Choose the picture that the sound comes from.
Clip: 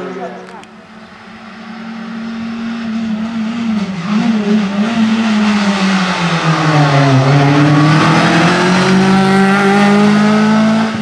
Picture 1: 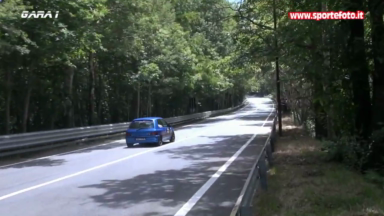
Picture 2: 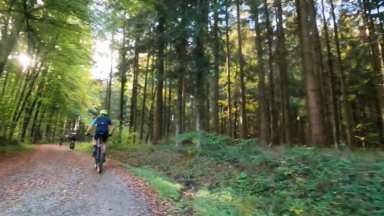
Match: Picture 1